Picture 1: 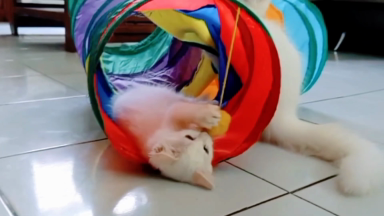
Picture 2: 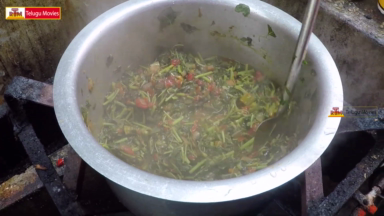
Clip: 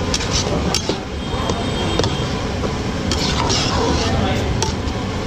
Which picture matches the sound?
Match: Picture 2